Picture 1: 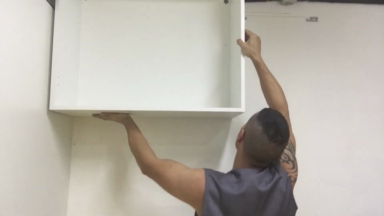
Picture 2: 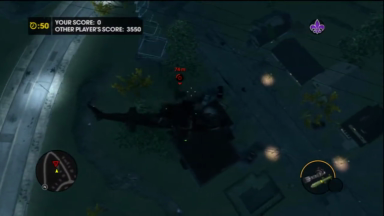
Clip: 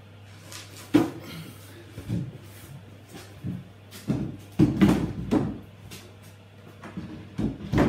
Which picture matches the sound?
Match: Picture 1